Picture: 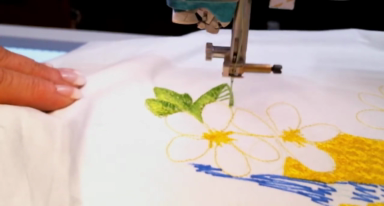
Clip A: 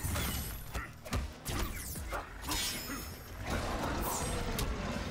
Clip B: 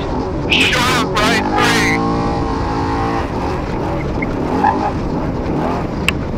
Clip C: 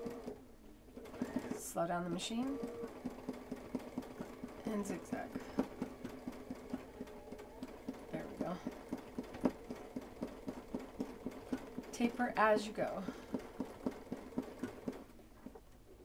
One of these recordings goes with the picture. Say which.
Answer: C